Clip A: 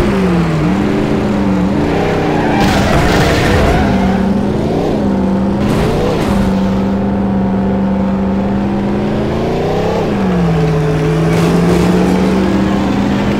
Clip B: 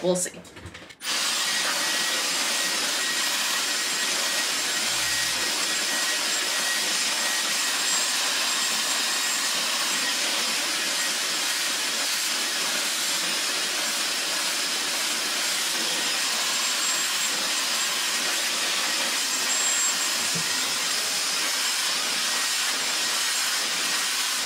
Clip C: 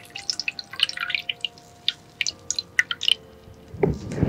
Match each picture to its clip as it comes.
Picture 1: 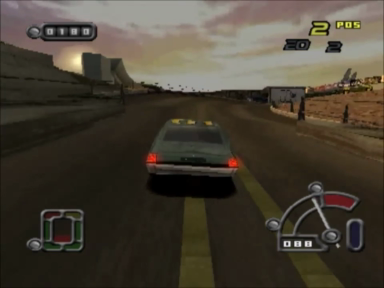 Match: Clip A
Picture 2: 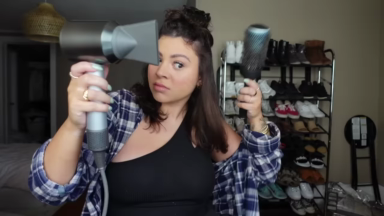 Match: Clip B